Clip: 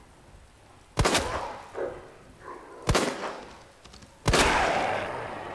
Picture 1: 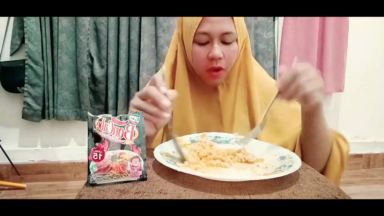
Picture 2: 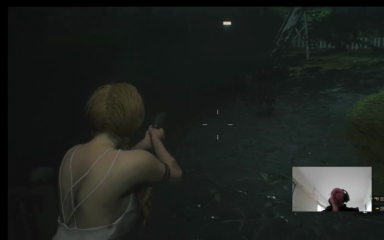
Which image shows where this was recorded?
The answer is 2